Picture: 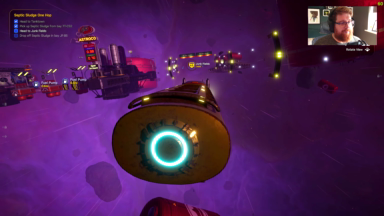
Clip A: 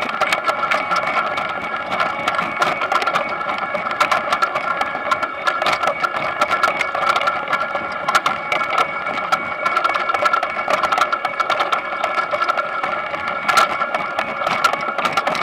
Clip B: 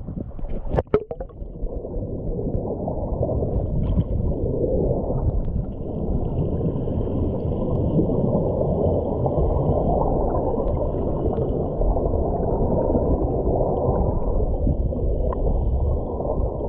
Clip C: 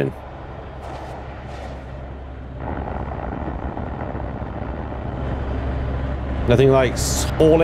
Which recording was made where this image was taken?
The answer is C